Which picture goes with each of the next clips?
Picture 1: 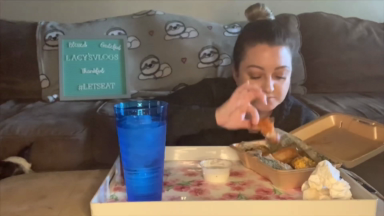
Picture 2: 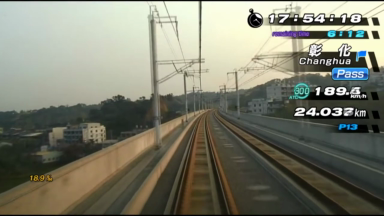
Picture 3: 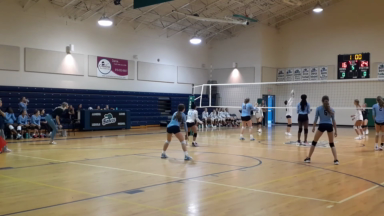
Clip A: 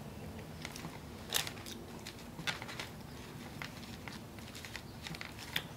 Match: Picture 1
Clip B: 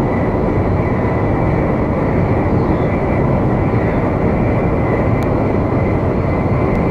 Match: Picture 2